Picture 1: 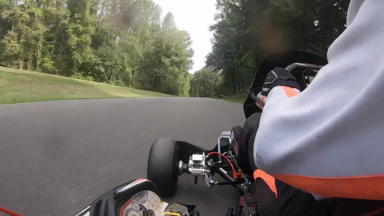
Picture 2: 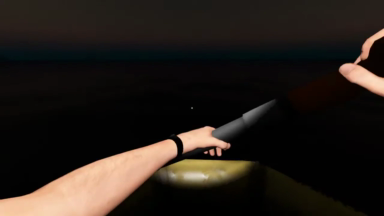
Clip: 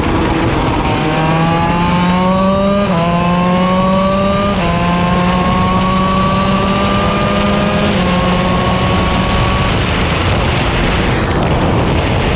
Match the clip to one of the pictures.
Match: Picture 1